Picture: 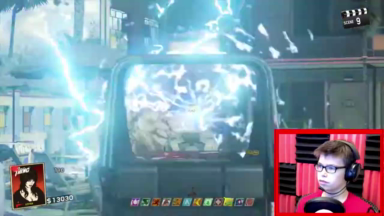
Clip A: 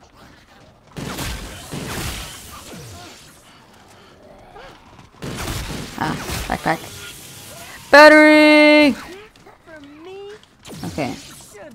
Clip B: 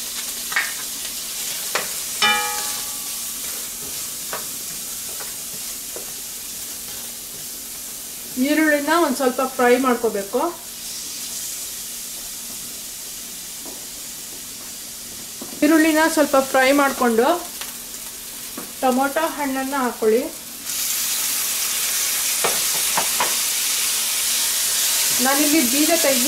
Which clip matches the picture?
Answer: A